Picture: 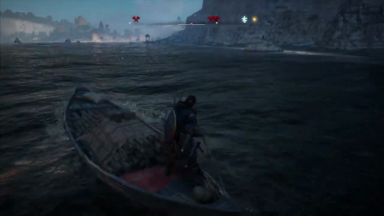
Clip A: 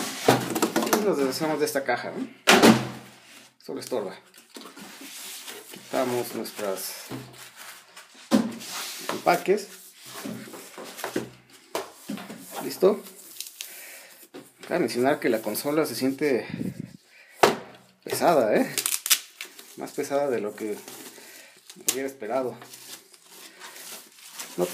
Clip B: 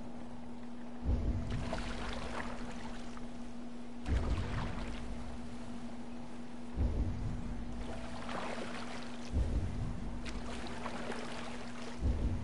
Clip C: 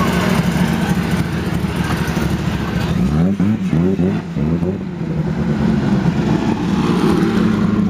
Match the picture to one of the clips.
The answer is B